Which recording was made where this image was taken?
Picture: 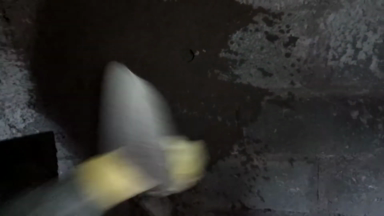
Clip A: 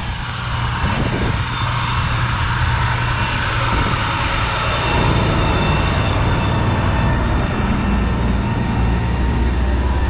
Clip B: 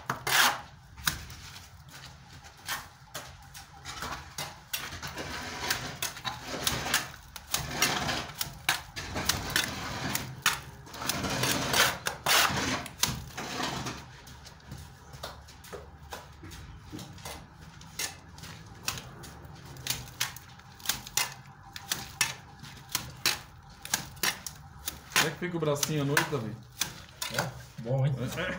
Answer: B